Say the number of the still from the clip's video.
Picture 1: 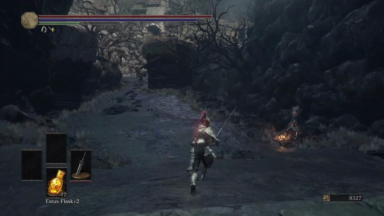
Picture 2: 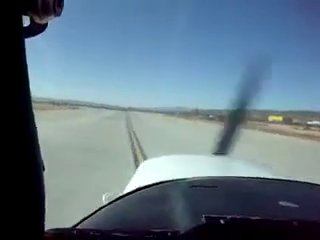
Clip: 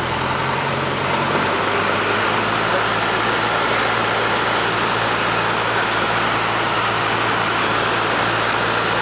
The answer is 2